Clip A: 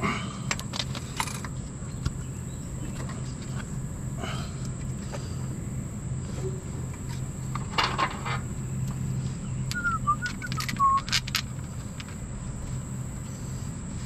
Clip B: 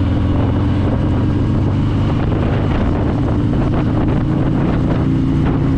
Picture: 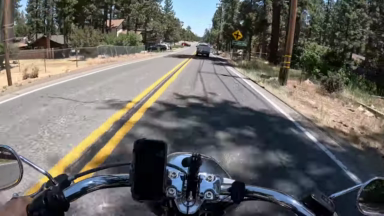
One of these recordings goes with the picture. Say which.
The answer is B